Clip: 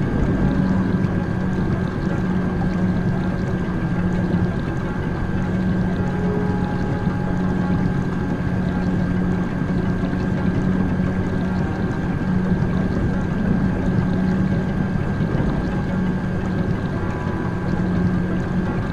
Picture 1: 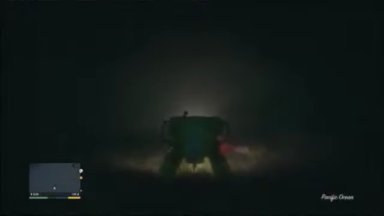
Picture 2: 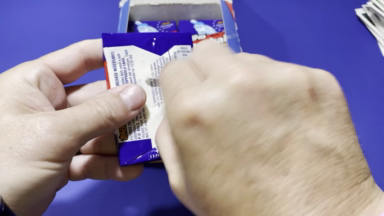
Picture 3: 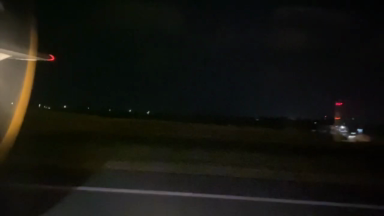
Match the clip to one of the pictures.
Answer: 1